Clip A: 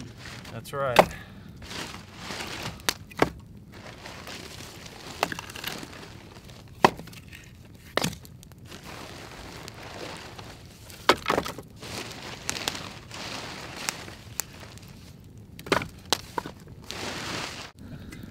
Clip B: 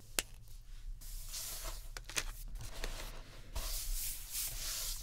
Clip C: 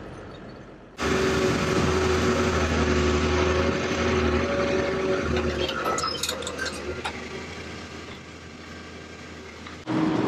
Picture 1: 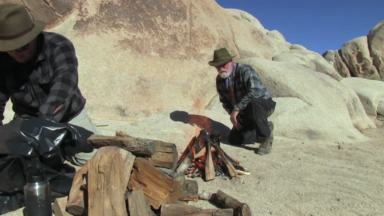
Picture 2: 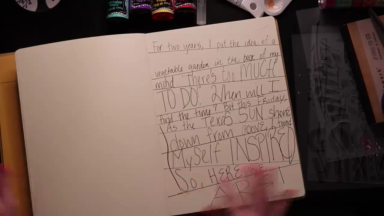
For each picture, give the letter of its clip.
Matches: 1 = A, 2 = B